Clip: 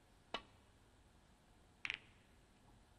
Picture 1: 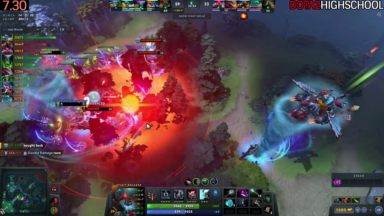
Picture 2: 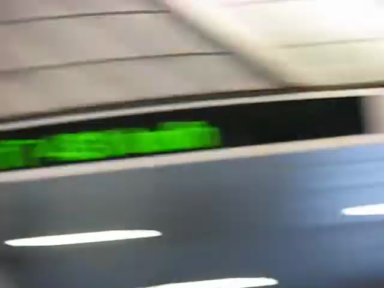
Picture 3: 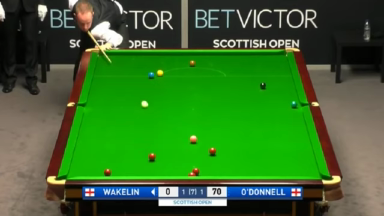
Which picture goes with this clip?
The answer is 3